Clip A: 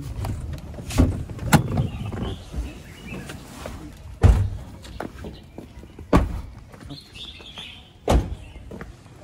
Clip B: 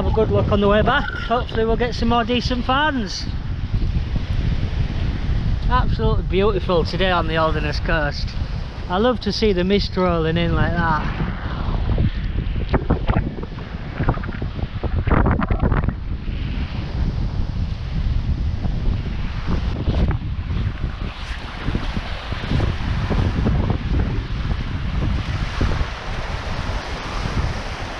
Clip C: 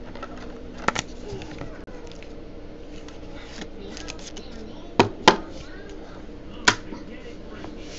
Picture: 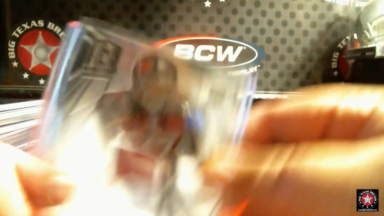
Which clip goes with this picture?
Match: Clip C